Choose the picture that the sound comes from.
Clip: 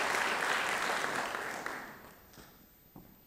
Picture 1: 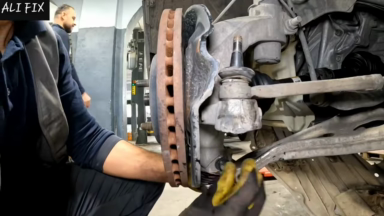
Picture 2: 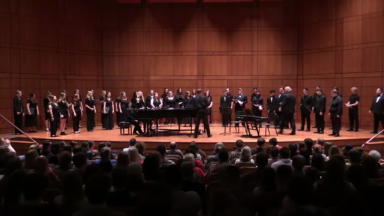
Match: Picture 2